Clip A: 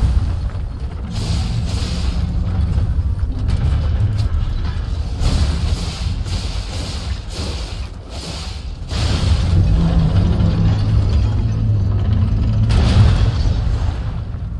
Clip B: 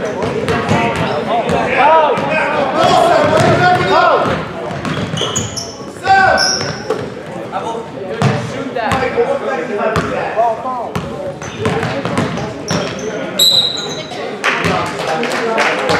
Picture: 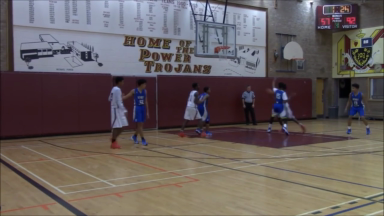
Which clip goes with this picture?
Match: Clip B